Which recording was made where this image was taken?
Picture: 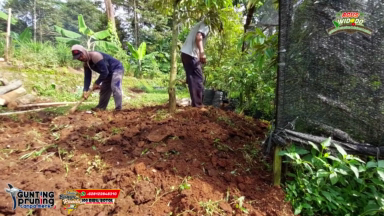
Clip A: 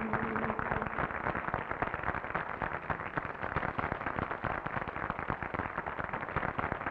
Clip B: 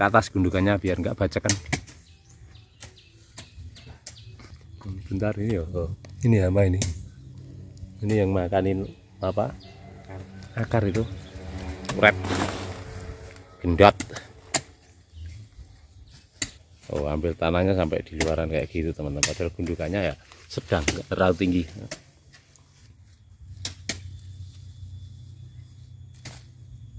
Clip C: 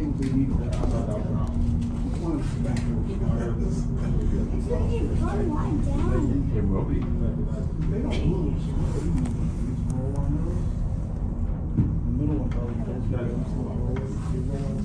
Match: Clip B